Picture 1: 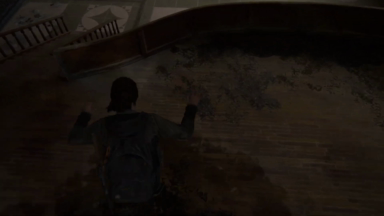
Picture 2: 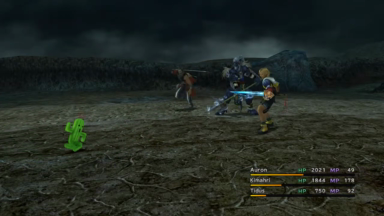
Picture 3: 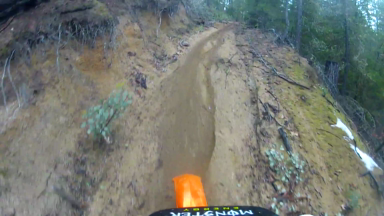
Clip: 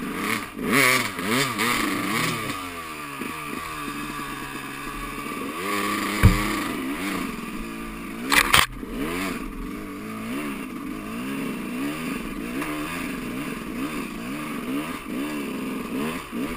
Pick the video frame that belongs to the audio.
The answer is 3